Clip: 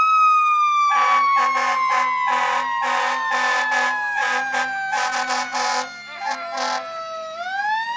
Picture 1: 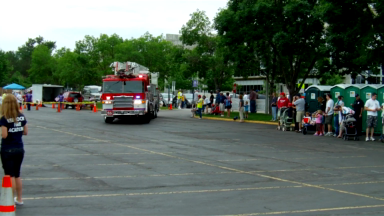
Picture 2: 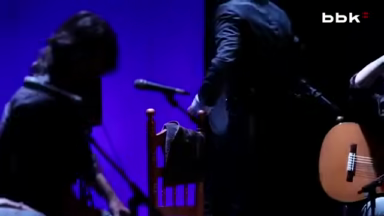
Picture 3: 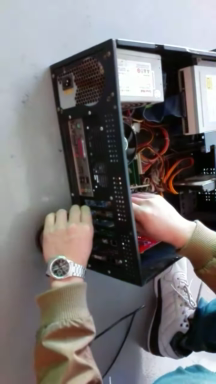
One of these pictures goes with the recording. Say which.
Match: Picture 1